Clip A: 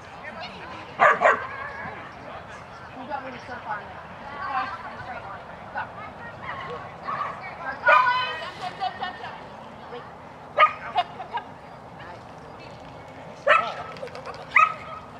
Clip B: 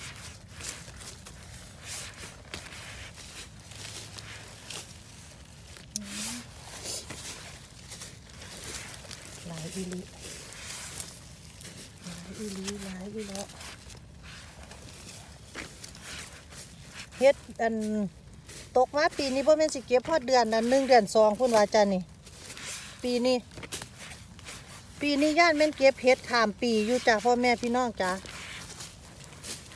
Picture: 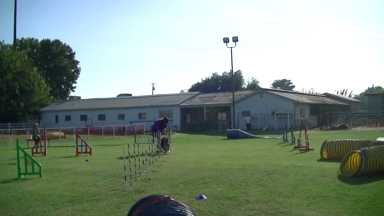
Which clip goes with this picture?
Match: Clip A